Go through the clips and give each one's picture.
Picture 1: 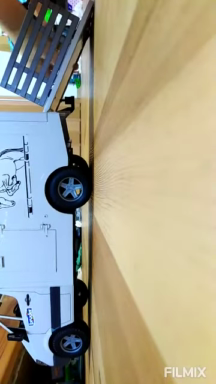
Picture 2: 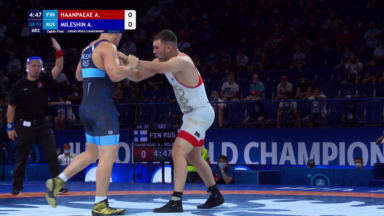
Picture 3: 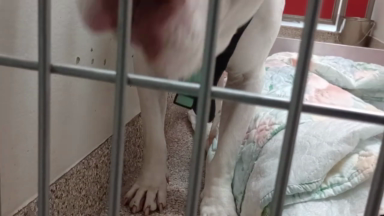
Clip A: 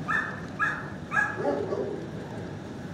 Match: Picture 3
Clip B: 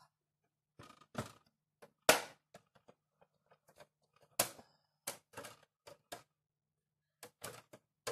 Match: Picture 1